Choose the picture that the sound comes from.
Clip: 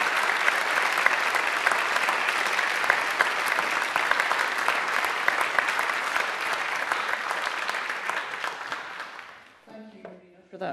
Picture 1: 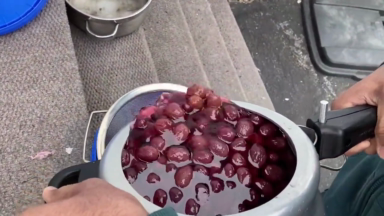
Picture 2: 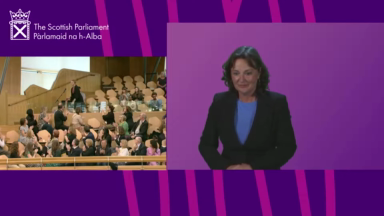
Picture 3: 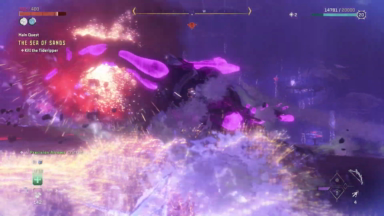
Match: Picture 2